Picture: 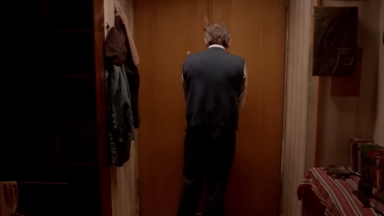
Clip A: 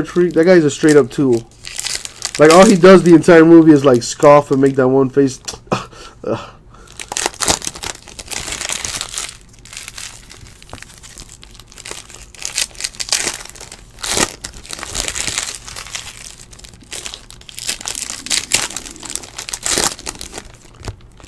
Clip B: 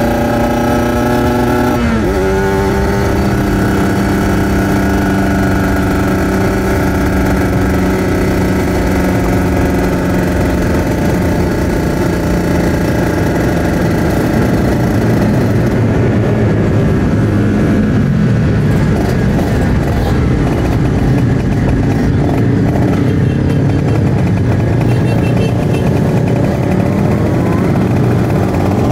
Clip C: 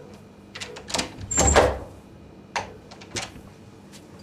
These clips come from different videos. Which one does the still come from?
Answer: C